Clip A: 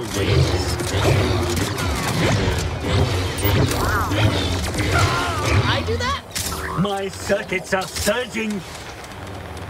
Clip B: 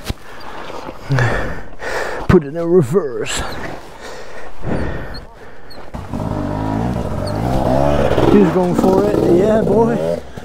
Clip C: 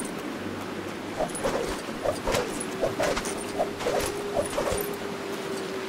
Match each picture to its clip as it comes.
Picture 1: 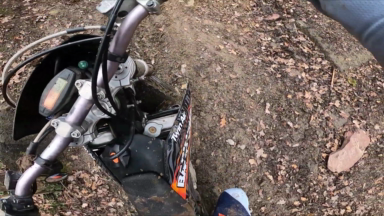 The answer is B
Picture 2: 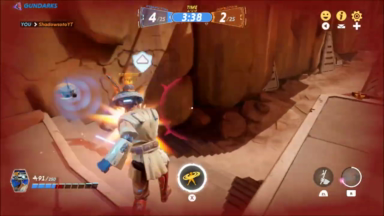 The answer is A